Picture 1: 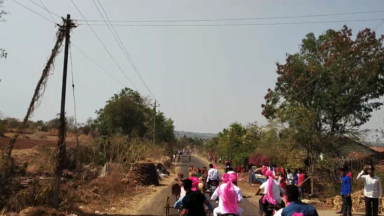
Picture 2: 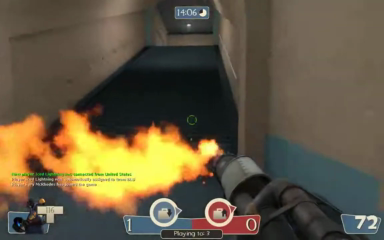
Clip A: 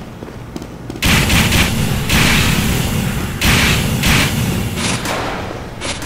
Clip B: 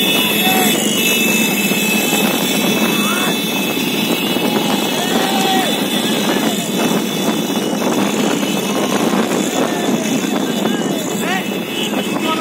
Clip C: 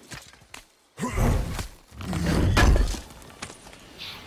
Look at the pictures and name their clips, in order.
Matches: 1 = B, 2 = A